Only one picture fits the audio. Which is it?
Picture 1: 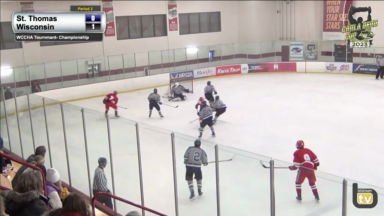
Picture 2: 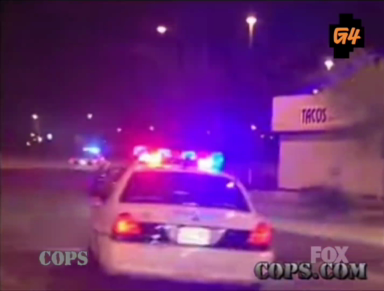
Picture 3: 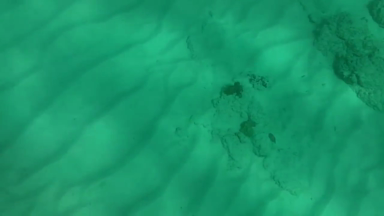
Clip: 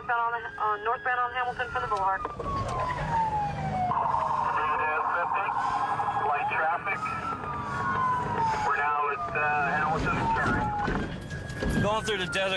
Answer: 2